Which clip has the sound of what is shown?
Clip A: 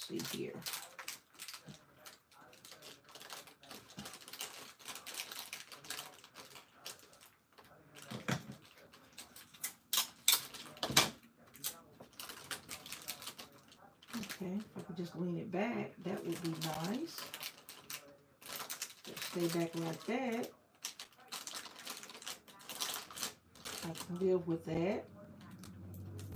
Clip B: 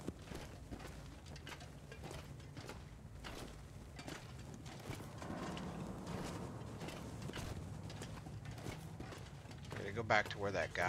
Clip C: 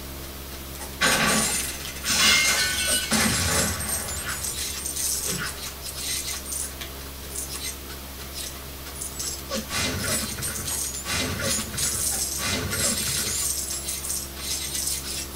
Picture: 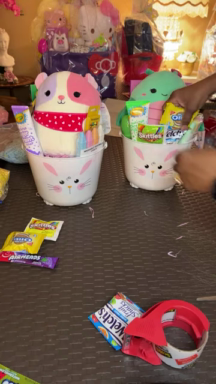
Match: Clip A